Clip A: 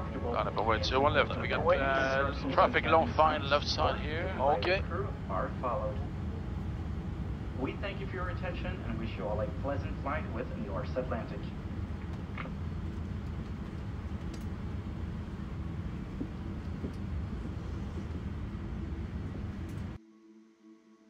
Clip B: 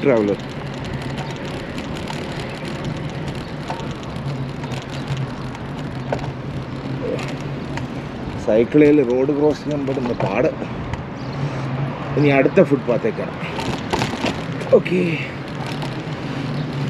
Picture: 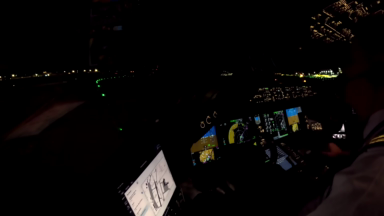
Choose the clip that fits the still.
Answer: A